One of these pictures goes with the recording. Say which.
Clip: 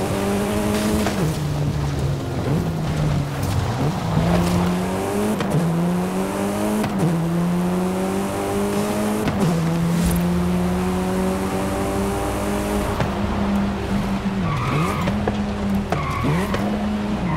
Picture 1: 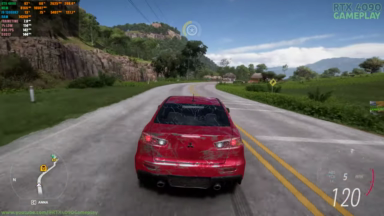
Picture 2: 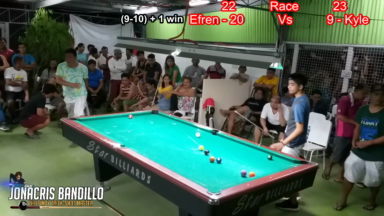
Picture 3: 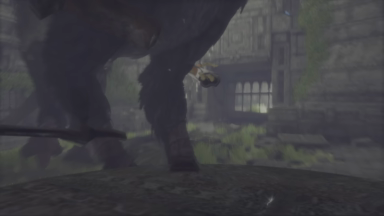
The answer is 1